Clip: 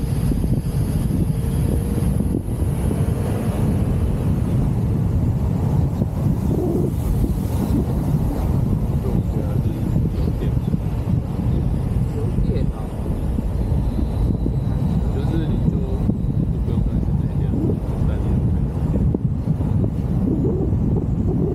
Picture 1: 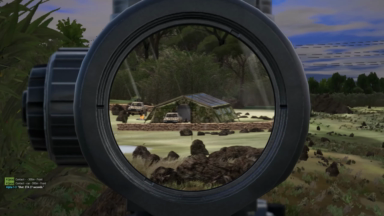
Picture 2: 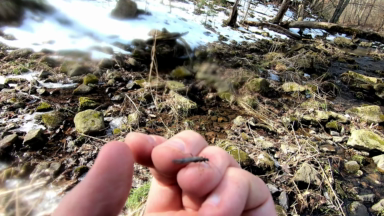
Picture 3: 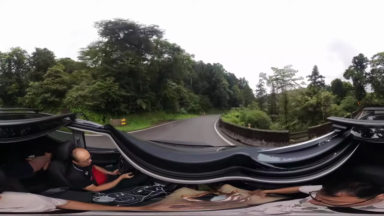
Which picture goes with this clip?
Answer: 3